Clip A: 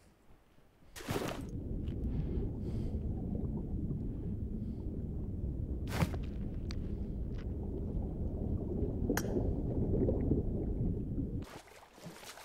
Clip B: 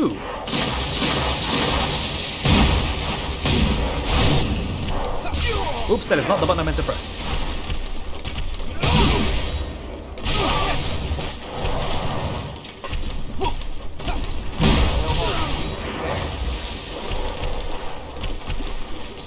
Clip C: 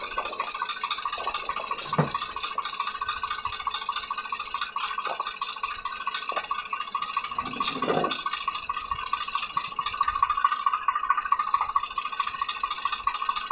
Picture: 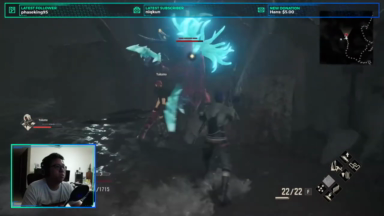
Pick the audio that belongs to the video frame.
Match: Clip B